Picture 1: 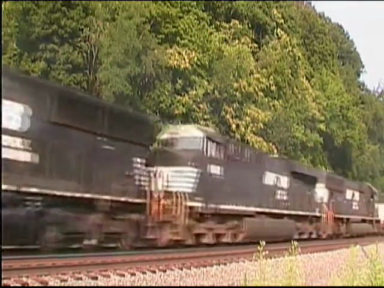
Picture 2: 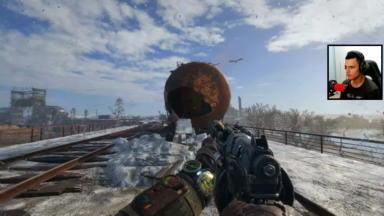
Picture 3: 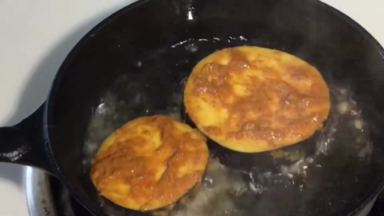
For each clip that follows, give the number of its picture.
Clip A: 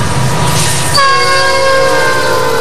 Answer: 1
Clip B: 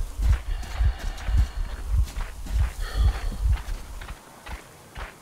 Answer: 2